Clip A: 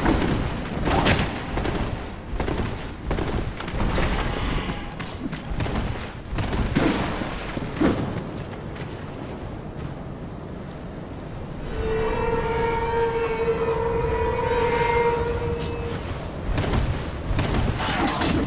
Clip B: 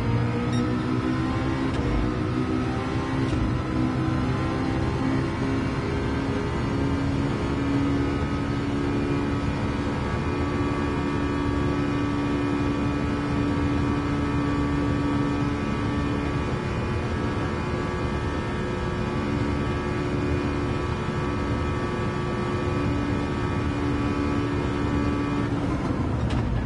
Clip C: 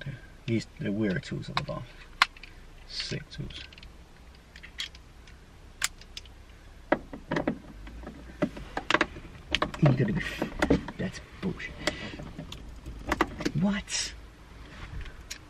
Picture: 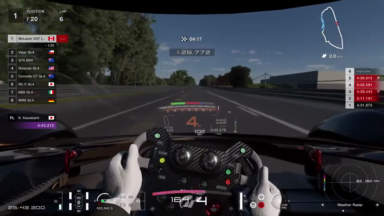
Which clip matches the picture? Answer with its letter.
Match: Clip B